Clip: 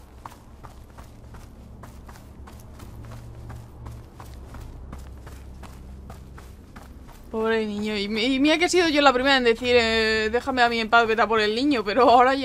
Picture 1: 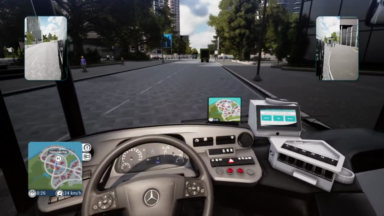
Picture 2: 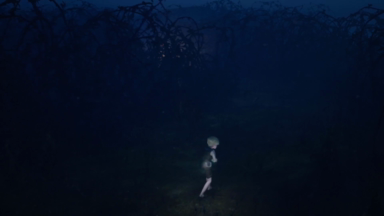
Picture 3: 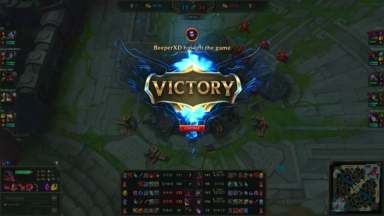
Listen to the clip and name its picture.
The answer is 2